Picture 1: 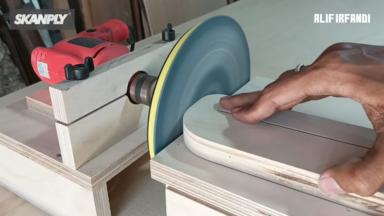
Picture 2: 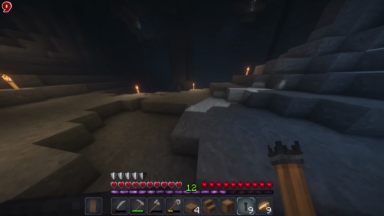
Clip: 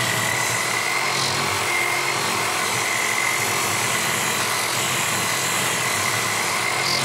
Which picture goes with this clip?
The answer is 1